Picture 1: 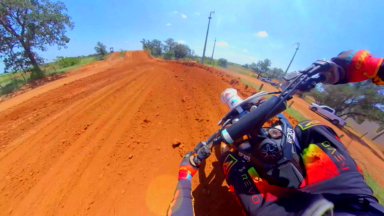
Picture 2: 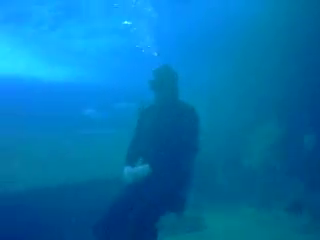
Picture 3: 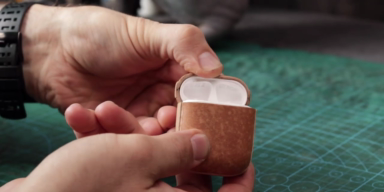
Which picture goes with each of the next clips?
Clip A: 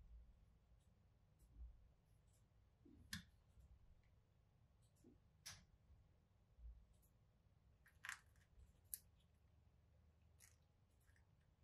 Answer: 3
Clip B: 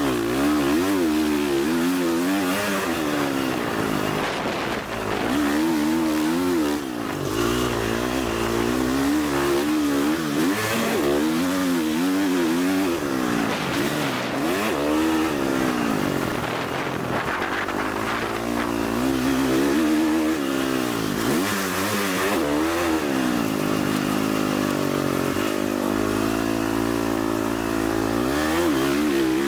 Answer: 1